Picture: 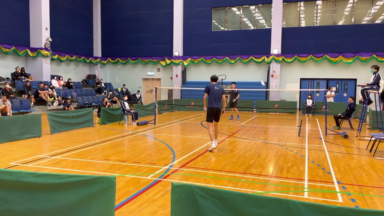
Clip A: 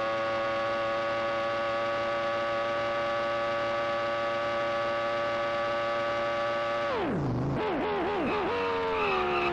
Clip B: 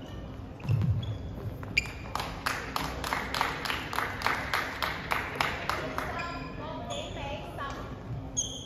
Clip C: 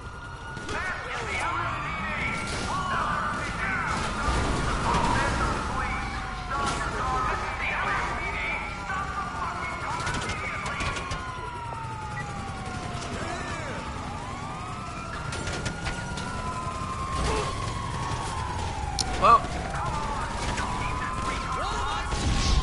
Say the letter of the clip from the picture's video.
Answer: B